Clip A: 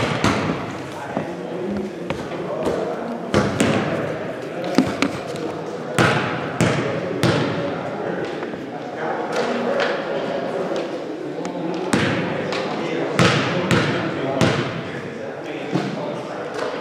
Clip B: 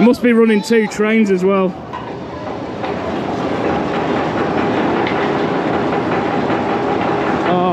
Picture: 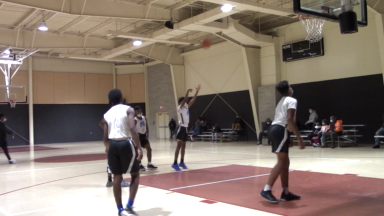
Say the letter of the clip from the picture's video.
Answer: A